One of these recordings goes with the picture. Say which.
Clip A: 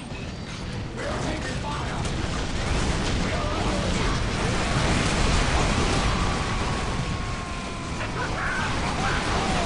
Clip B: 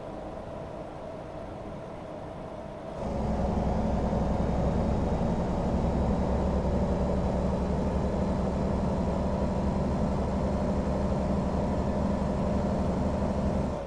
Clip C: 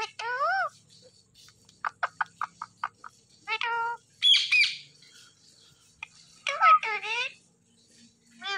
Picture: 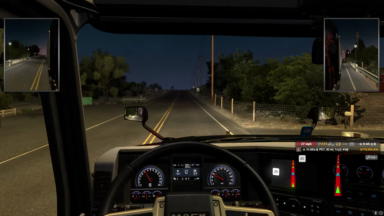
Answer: B